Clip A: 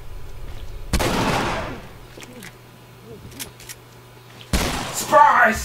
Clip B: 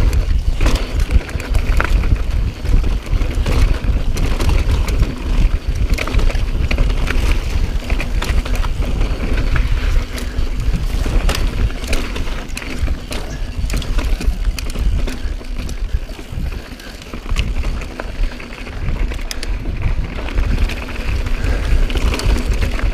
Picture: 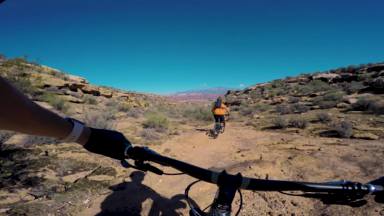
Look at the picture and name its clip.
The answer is B